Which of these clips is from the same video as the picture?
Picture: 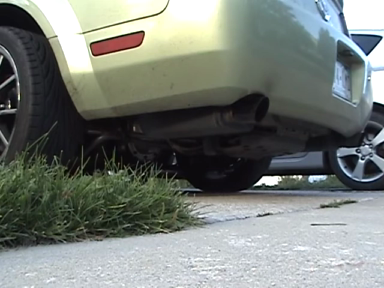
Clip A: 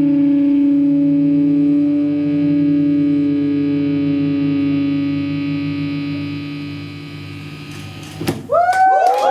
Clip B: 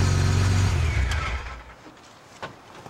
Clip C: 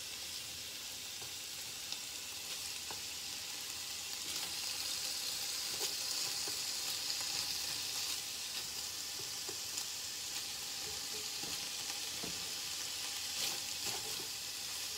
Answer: B